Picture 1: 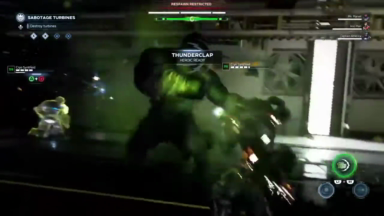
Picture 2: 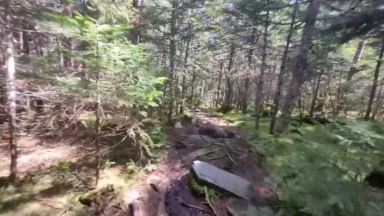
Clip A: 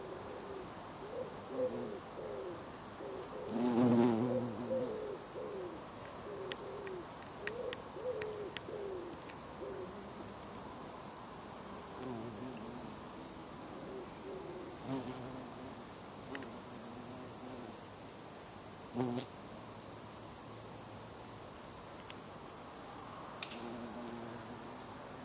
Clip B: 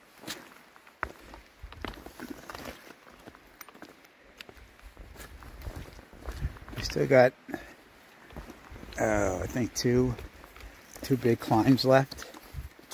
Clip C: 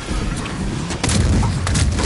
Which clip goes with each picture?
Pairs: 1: C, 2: B